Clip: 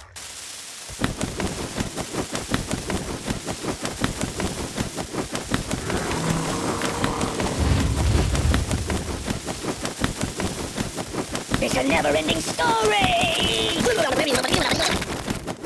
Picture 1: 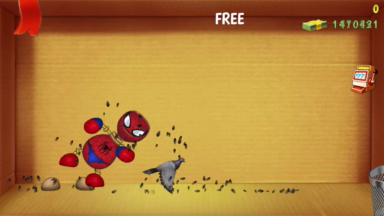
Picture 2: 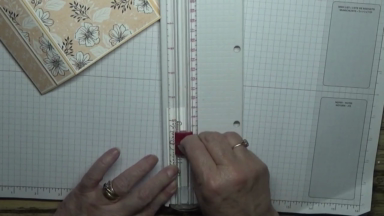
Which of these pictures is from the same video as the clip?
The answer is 1